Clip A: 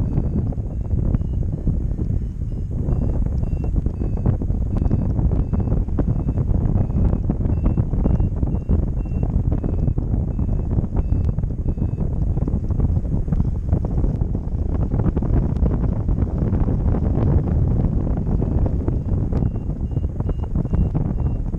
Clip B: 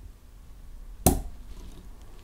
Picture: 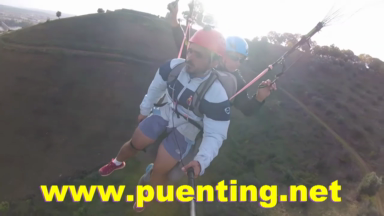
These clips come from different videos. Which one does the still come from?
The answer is A